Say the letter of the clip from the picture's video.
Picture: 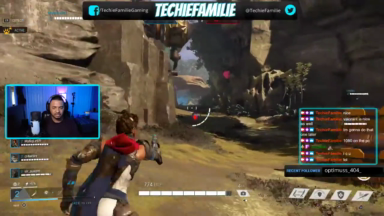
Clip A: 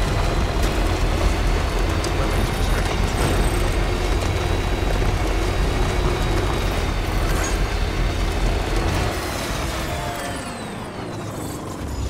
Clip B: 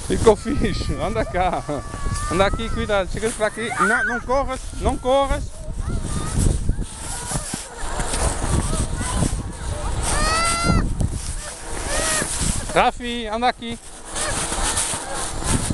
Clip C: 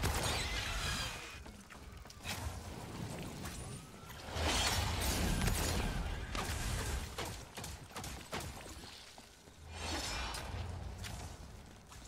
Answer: C